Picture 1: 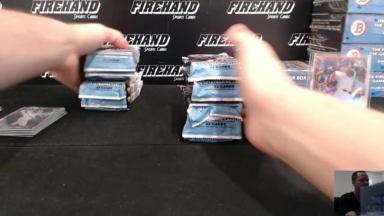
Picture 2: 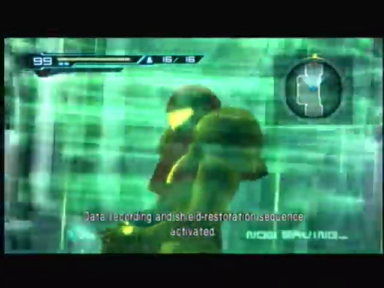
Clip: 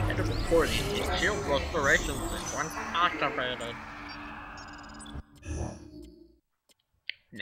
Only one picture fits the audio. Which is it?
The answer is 2